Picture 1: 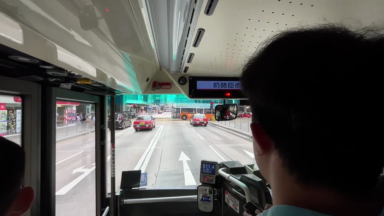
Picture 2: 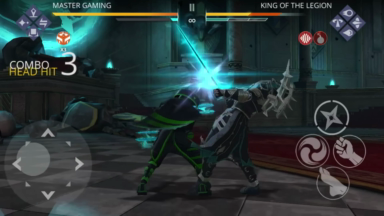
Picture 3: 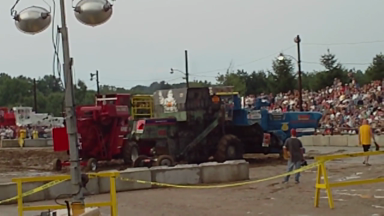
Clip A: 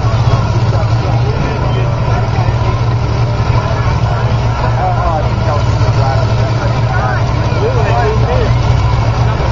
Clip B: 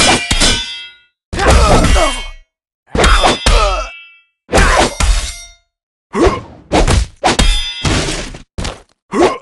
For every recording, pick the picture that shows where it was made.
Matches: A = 3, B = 2